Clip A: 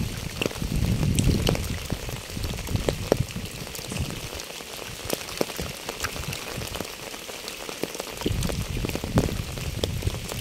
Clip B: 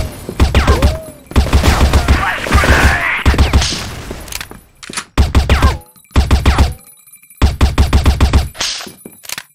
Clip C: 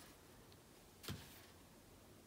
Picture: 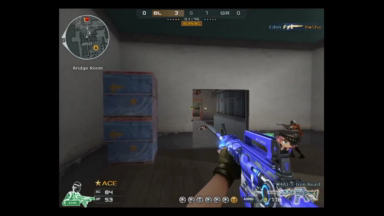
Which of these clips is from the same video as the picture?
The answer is B